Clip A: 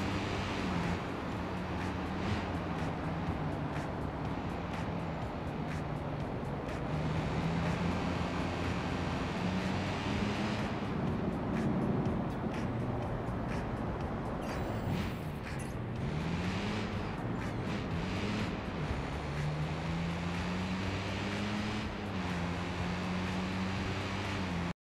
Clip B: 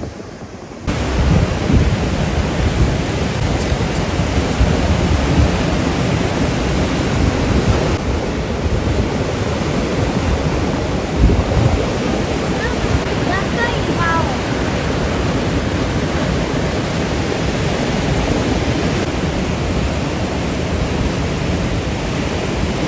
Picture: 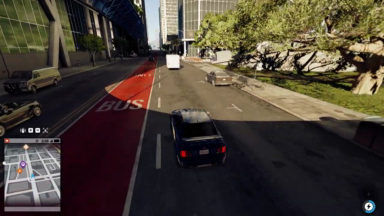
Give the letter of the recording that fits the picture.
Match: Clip A